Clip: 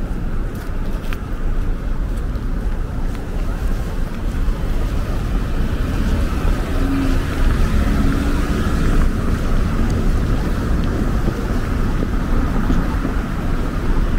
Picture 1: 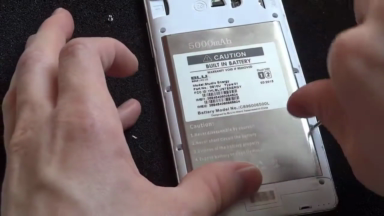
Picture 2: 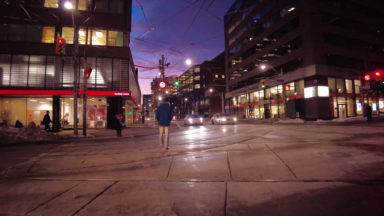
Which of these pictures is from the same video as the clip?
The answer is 2